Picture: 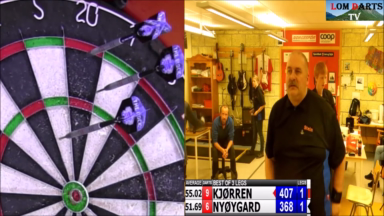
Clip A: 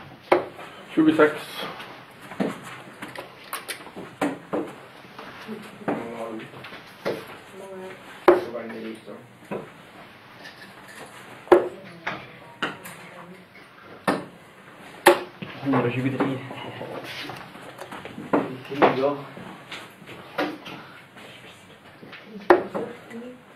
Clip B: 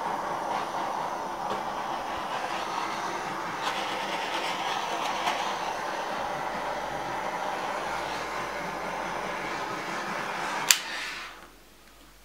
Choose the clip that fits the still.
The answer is A